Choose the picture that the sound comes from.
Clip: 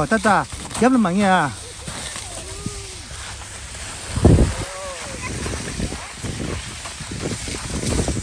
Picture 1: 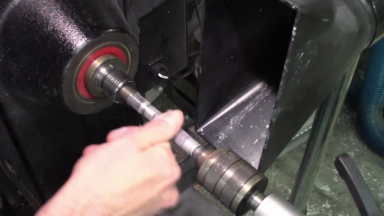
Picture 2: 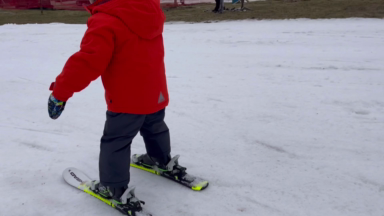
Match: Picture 2